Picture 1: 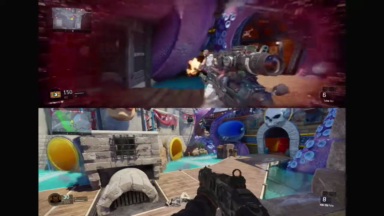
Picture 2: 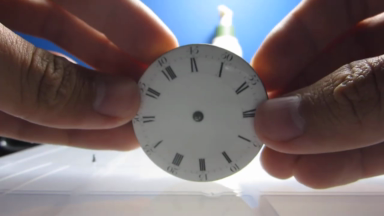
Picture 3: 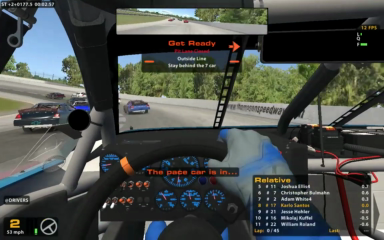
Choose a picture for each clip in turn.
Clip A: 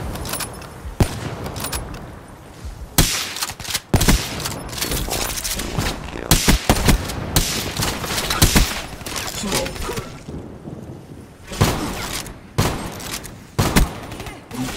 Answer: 1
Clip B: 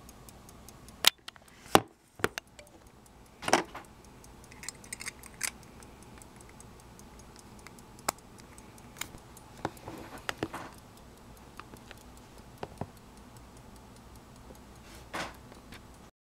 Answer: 2